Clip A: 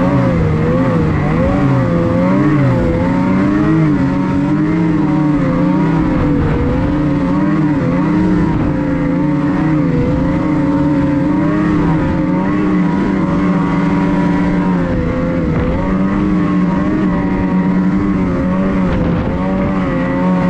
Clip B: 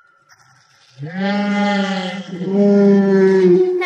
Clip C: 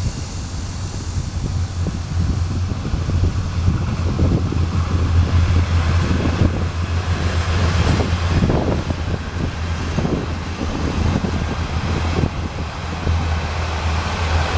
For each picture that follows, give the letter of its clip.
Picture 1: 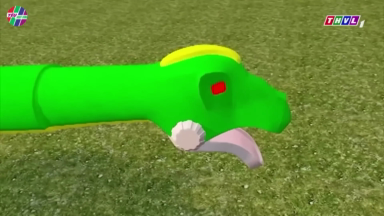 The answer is B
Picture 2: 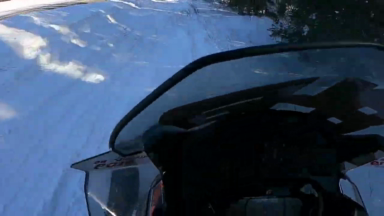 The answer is A